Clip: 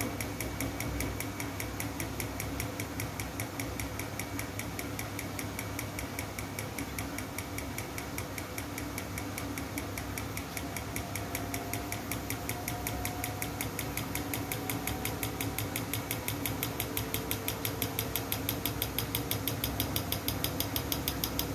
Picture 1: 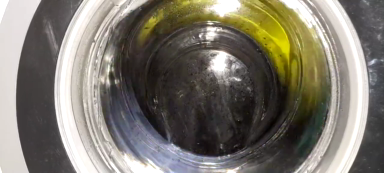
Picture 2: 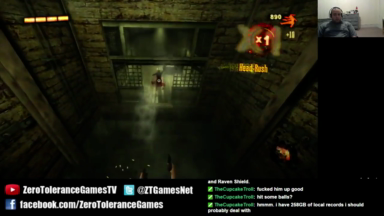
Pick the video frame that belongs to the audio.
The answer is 1